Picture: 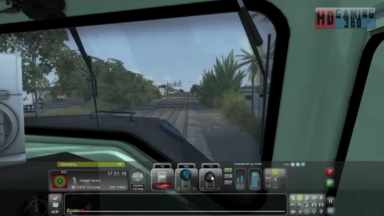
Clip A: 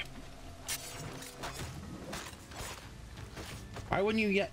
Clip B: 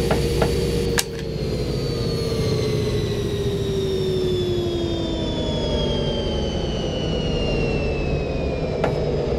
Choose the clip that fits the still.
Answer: B